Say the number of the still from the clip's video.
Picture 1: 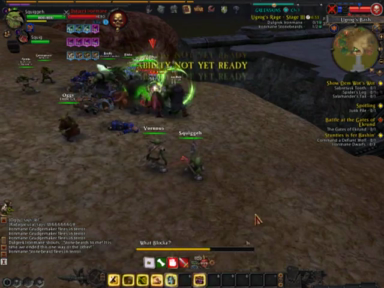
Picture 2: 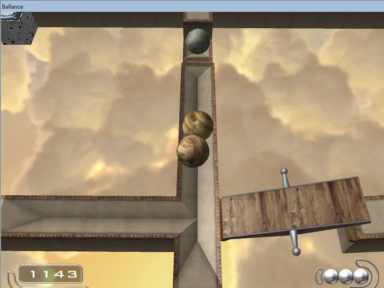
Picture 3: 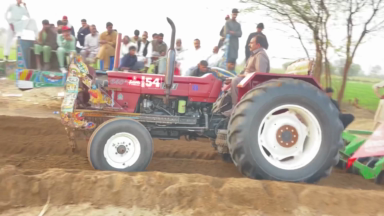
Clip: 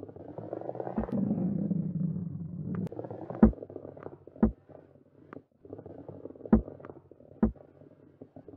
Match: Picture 2